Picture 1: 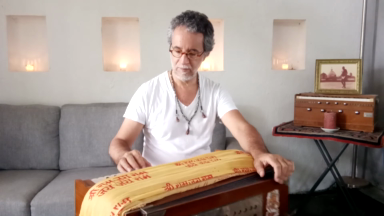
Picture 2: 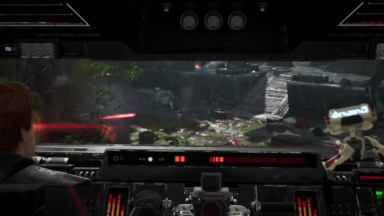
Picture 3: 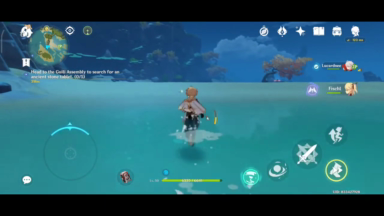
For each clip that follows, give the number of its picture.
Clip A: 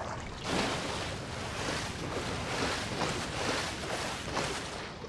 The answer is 3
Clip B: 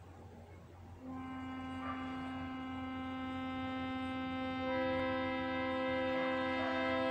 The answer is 1